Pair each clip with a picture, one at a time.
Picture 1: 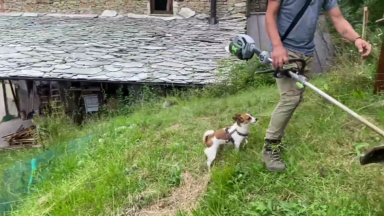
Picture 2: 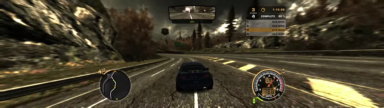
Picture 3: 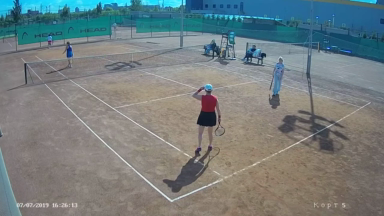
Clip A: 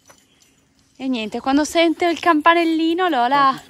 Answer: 1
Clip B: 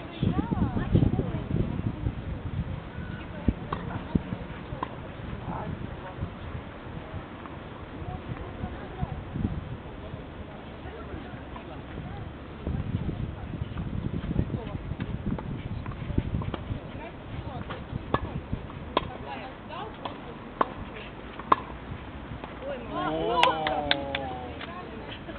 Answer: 3